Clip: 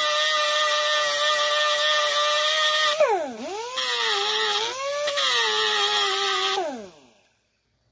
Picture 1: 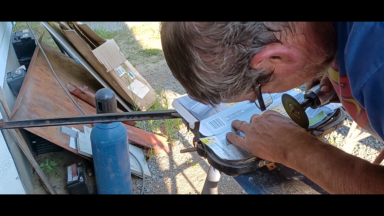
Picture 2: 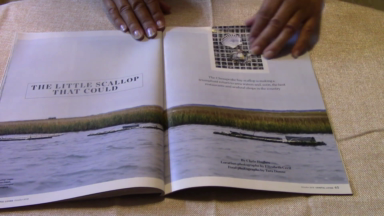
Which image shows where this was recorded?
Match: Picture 1